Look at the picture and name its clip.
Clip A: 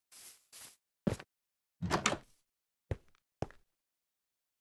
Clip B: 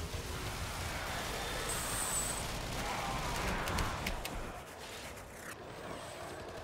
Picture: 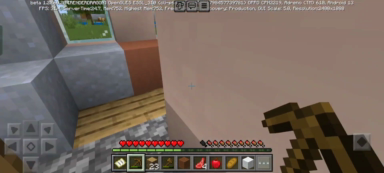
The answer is A